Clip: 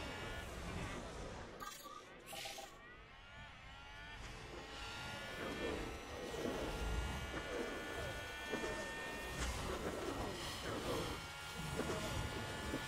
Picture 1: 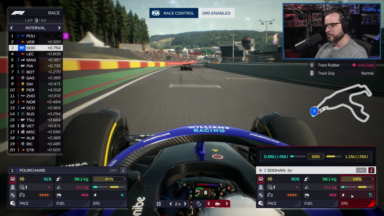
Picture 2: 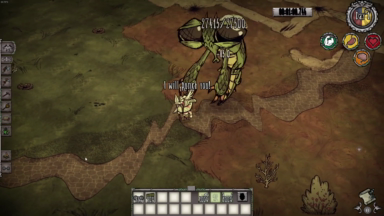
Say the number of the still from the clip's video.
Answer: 1